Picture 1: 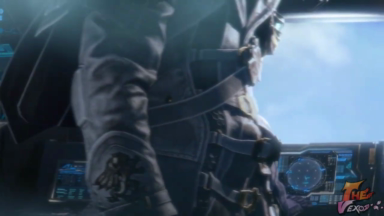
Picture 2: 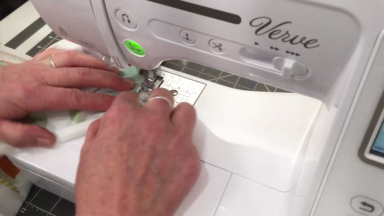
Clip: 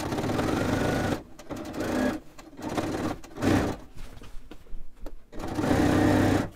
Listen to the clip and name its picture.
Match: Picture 2